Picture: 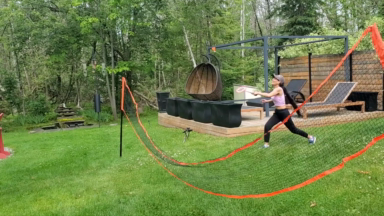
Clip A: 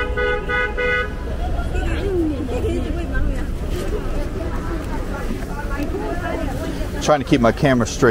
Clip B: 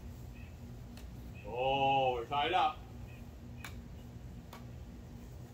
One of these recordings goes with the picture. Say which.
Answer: B